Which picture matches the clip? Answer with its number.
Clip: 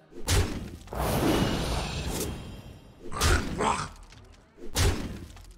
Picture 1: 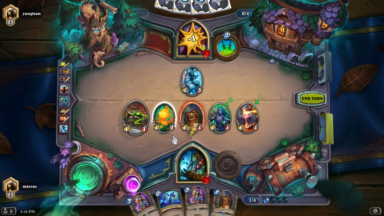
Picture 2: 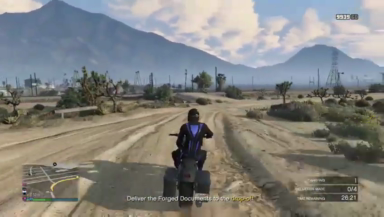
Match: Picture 1